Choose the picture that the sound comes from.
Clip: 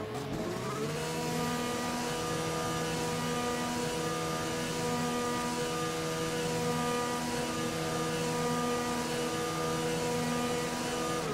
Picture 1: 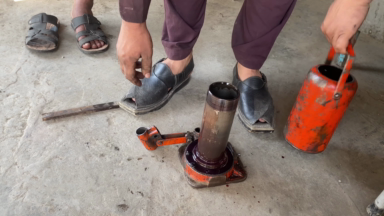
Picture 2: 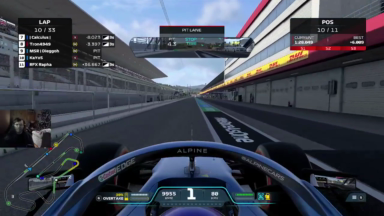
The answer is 2